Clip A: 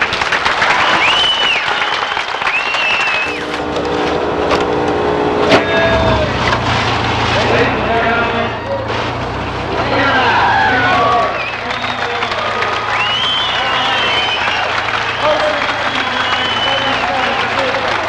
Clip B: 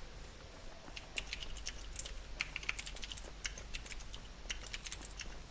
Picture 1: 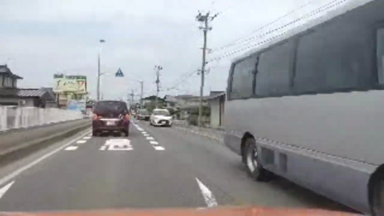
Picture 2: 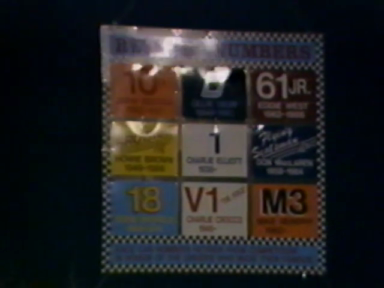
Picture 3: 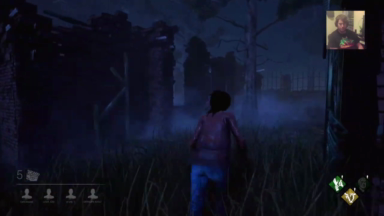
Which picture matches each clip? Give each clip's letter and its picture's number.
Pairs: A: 2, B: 3